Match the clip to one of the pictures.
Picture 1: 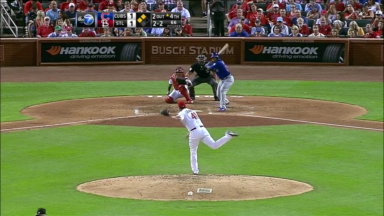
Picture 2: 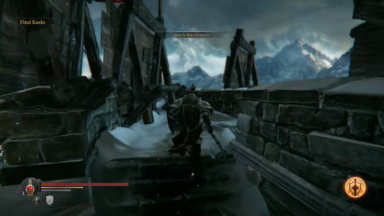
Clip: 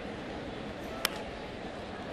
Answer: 1